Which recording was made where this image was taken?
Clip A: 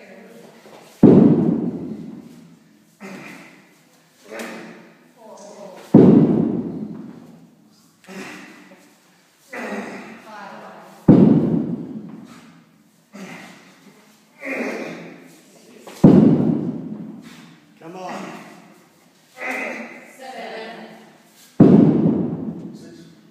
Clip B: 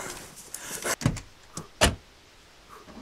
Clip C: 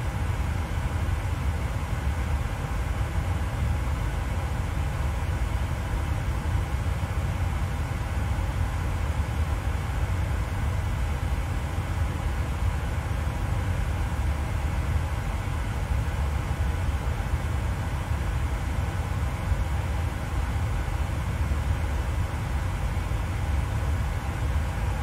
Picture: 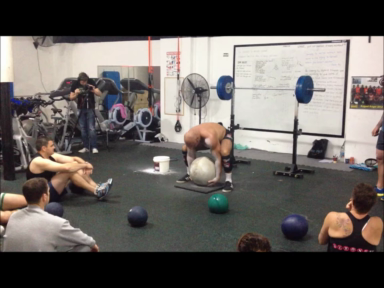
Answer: A